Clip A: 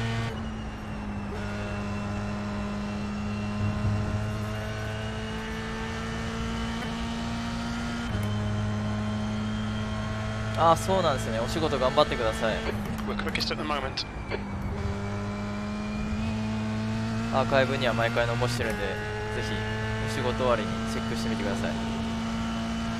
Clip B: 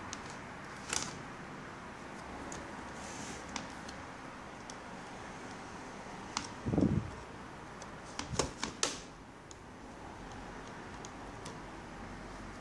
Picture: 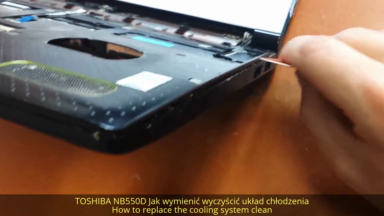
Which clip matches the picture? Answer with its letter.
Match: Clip B